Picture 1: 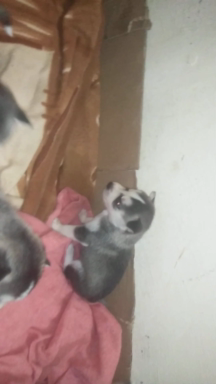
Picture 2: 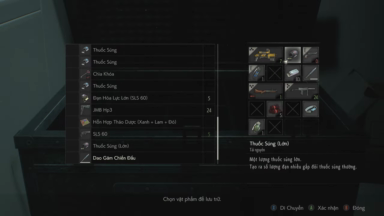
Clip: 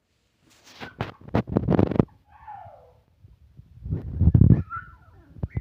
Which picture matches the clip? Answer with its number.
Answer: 1